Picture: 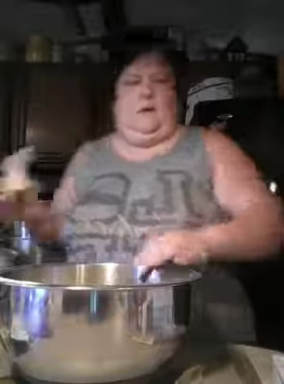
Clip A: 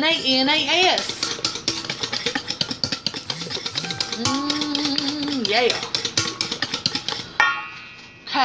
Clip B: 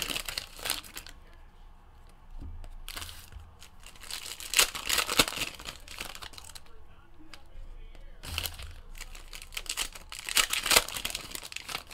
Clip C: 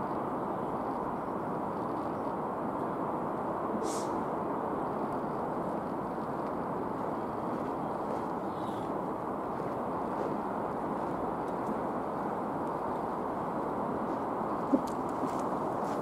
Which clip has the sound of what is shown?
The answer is A